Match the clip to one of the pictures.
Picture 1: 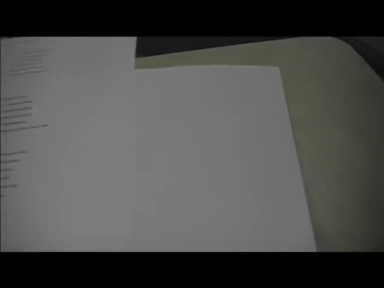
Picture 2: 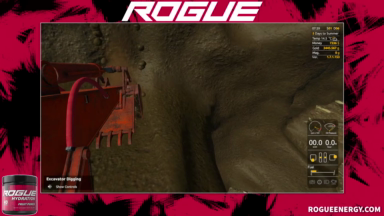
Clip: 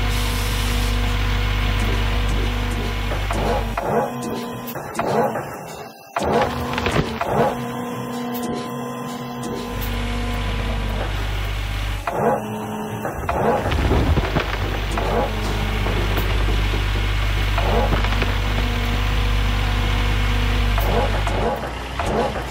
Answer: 2